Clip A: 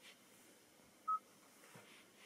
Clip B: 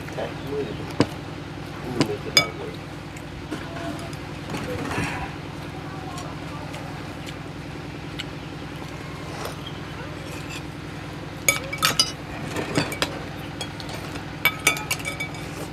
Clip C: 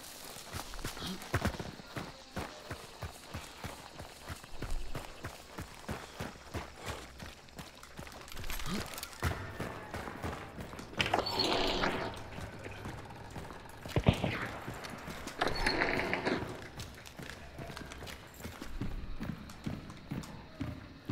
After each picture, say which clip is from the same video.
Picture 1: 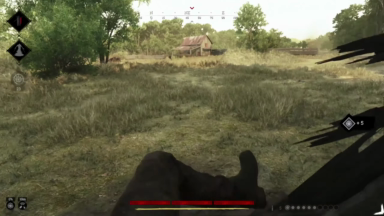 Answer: C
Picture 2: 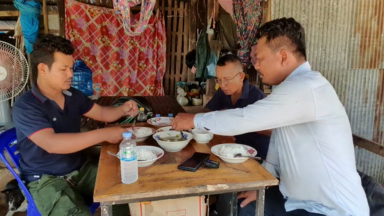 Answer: B